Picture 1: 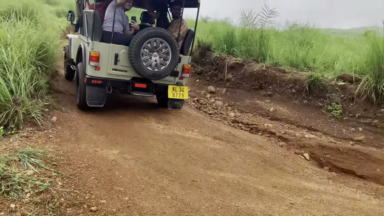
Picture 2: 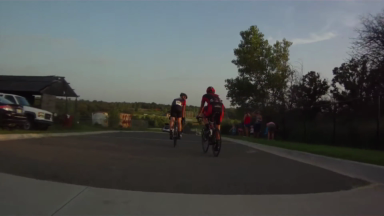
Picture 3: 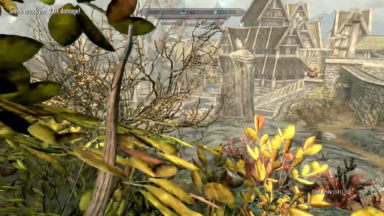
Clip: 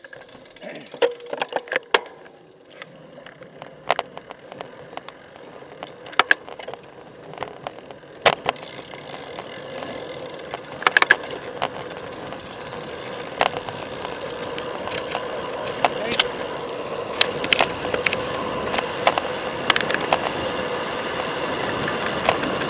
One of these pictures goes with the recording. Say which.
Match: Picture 2